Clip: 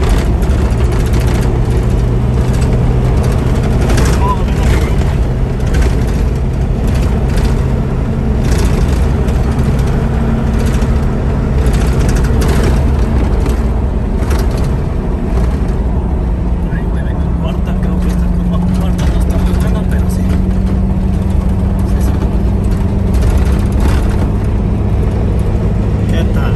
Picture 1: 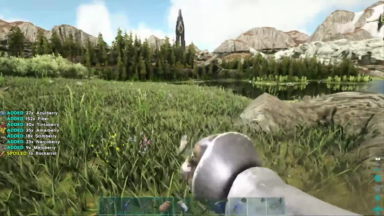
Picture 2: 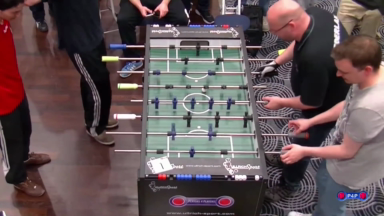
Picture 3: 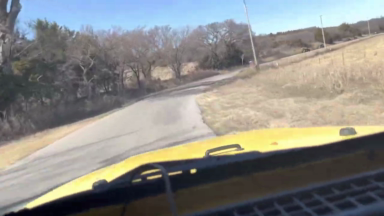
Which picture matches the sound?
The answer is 3